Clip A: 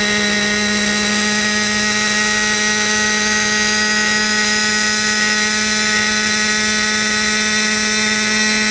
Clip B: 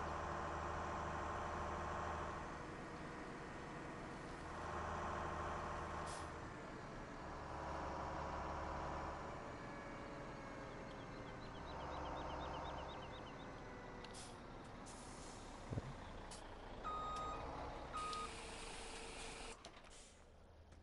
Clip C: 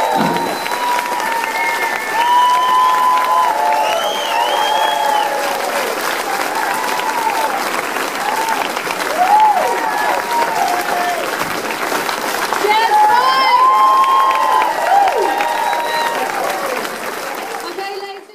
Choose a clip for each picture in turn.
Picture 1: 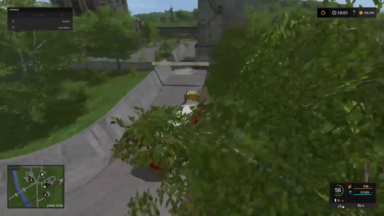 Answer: B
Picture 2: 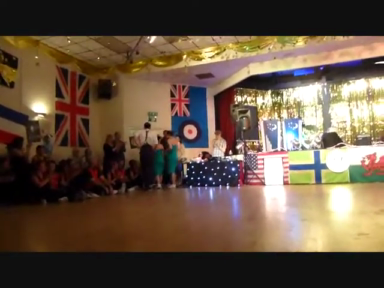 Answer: C